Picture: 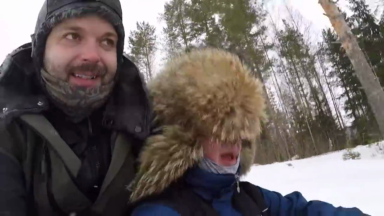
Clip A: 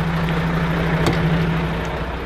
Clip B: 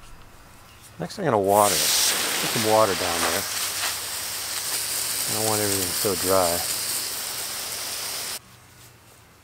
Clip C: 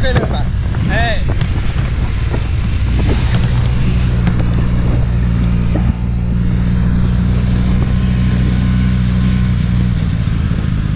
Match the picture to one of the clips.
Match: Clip C